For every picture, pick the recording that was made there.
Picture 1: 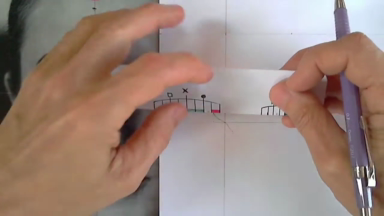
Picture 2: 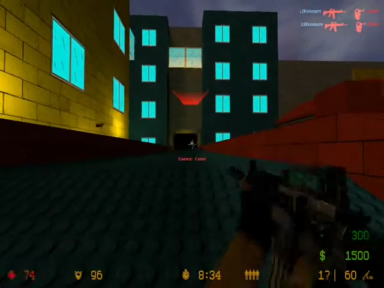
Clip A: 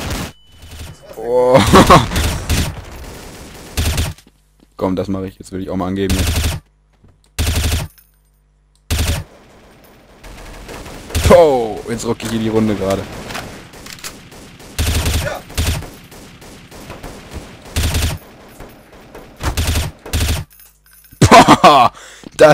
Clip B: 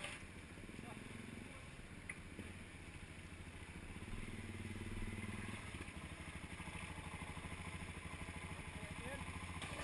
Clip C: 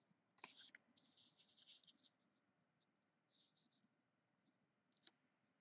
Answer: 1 C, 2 A